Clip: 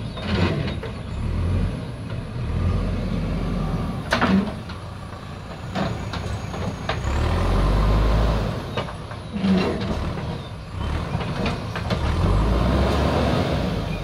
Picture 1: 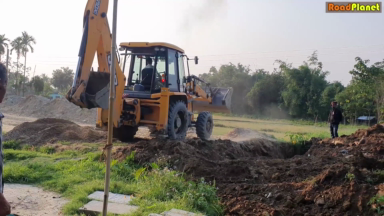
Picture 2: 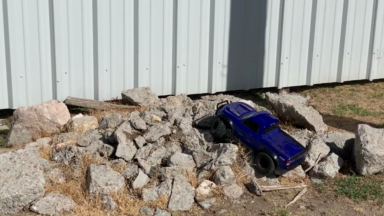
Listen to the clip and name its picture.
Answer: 1